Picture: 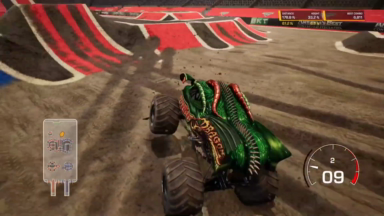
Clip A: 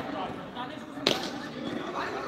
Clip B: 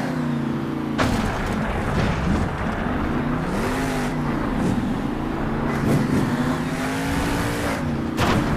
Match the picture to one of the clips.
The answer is B